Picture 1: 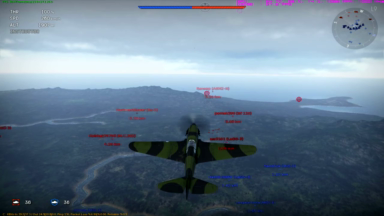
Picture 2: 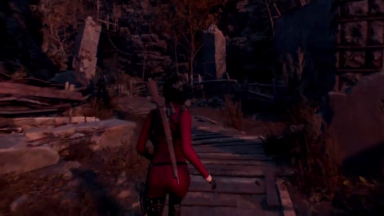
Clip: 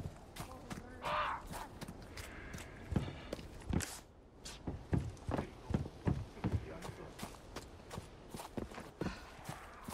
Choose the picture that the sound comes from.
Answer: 2